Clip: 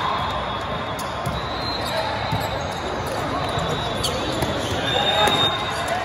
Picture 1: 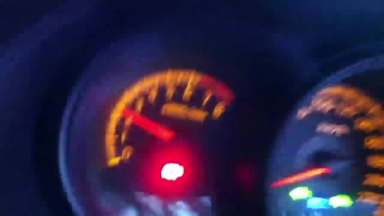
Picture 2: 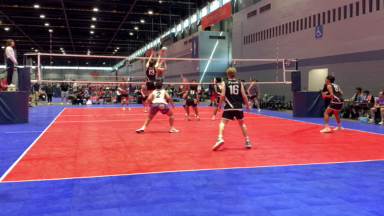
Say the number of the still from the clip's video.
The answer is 2